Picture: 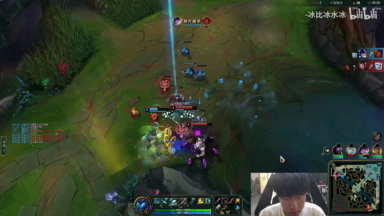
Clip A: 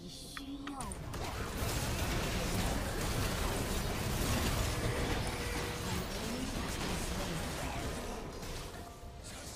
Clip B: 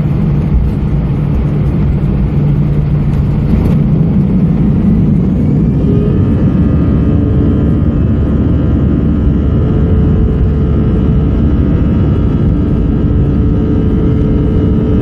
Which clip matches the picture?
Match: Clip A